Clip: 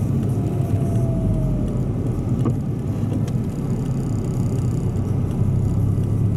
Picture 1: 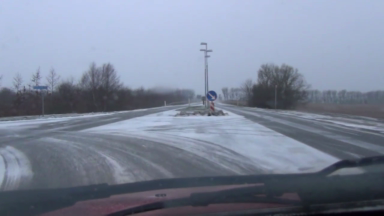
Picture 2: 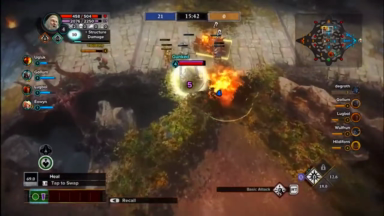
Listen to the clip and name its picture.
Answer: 1